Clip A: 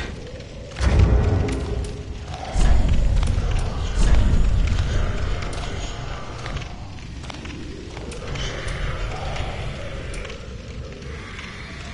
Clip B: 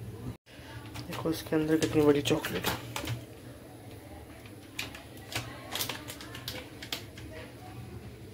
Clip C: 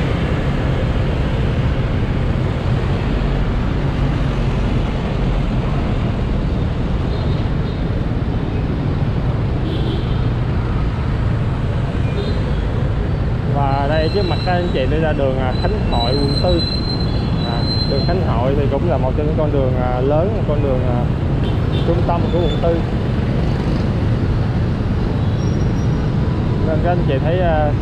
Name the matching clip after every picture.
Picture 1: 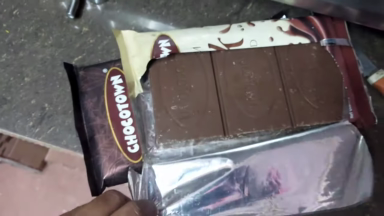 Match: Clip B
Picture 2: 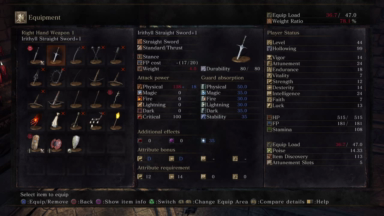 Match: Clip A